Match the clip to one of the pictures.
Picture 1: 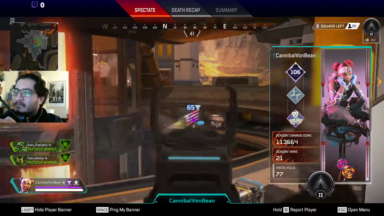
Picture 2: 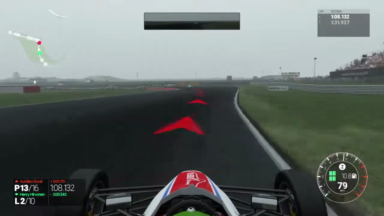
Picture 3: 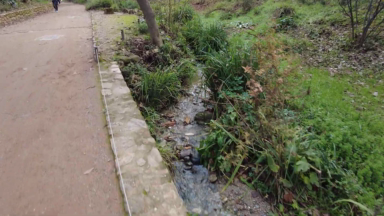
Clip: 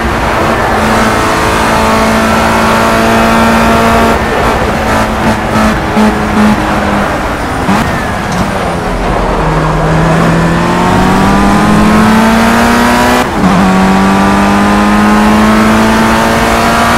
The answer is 2